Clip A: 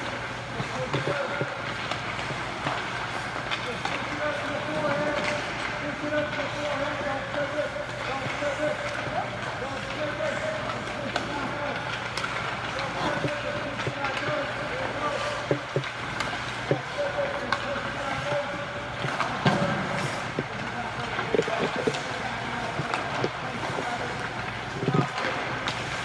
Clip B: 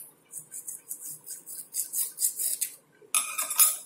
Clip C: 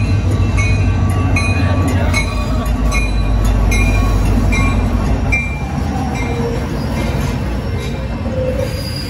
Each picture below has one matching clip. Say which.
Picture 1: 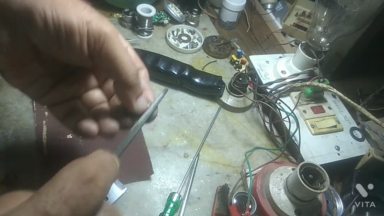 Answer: B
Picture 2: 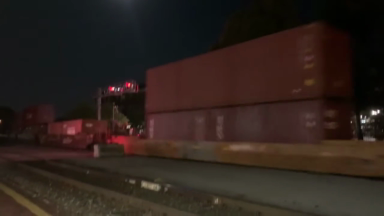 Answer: C